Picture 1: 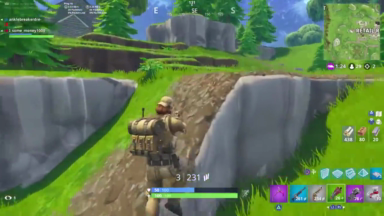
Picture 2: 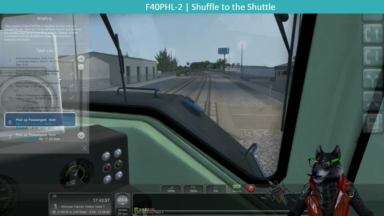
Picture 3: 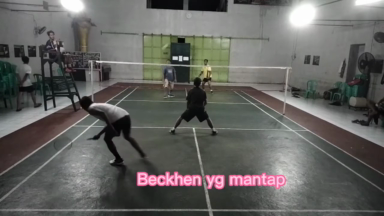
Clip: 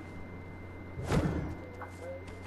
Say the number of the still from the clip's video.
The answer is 1